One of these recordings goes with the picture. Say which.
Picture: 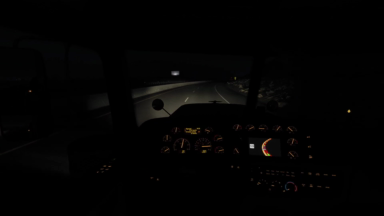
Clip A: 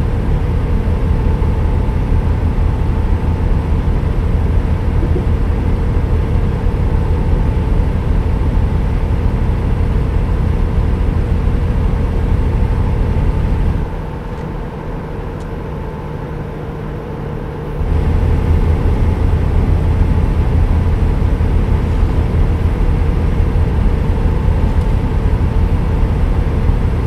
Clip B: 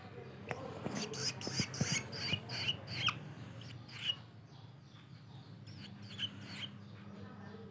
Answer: A